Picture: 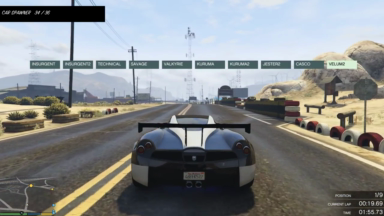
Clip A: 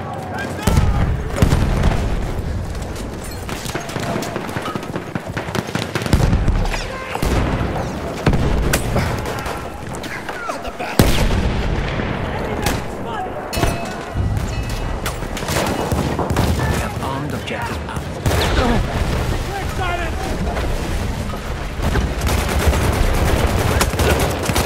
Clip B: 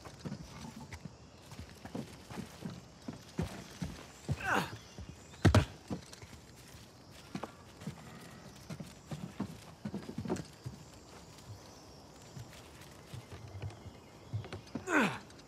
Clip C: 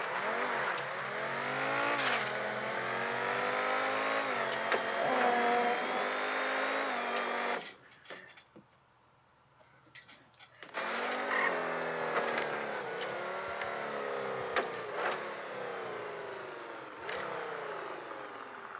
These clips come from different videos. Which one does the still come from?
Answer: C